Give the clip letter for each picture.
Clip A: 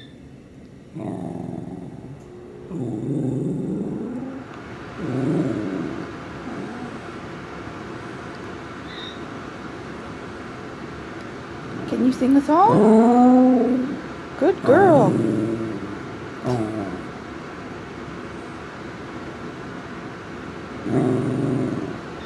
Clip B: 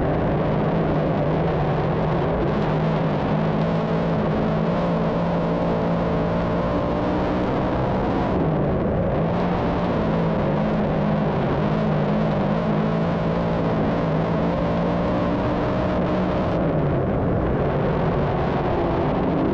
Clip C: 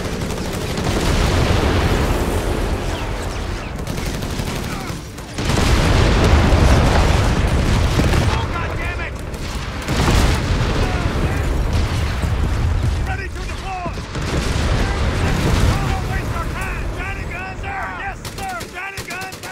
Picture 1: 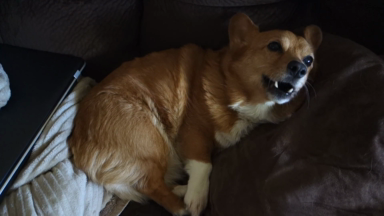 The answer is A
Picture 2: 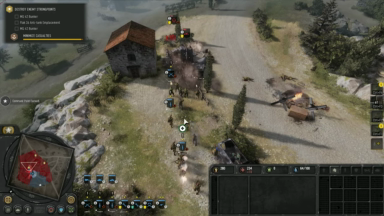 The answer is C